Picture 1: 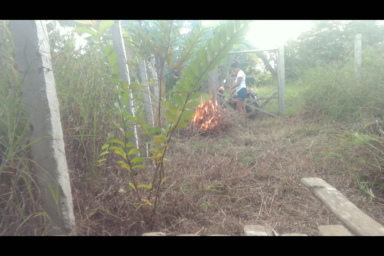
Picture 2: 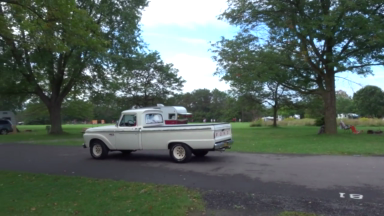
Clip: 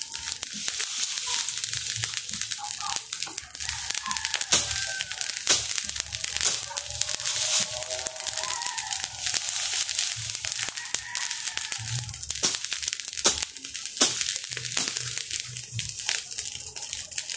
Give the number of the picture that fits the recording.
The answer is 1